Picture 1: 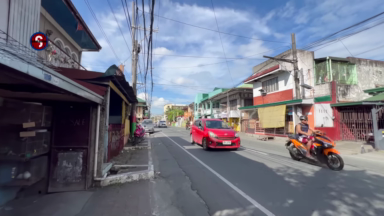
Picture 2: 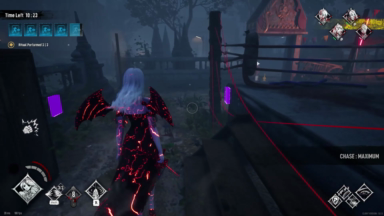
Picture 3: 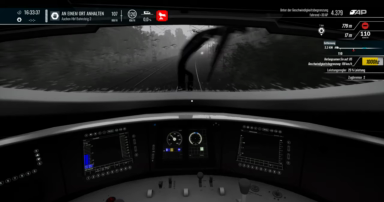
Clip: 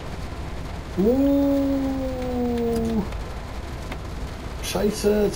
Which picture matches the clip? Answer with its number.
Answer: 3